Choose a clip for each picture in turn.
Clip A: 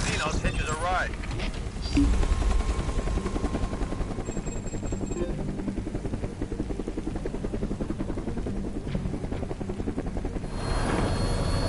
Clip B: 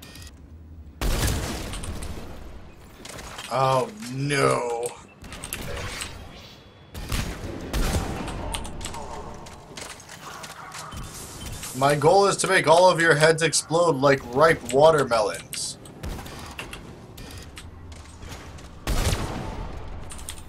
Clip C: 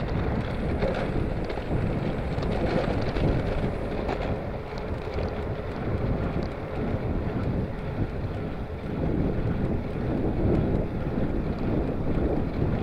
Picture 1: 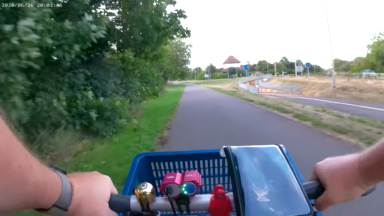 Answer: C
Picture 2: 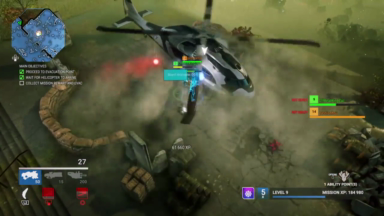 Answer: A